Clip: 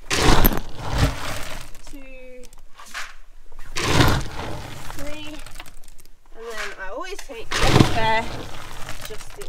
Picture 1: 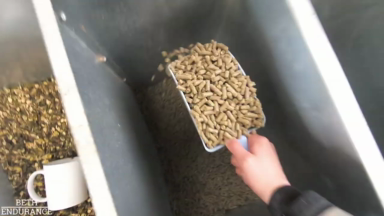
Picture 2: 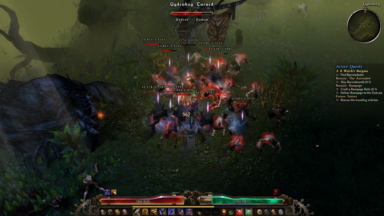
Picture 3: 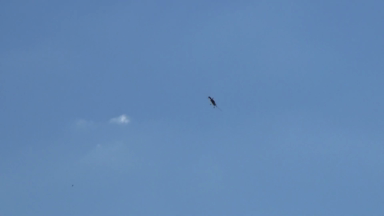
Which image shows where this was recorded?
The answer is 1